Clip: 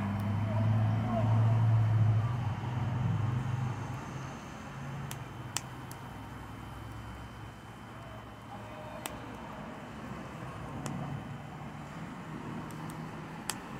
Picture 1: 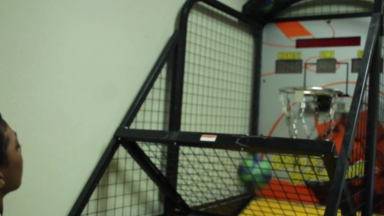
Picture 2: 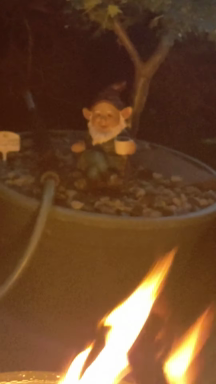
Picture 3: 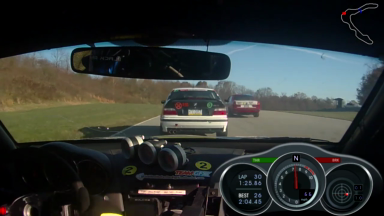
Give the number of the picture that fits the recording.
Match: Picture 2